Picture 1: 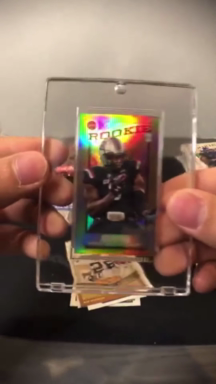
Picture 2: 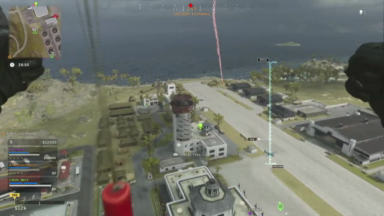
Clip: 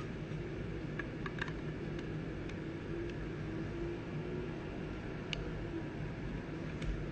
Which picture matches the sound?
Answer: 1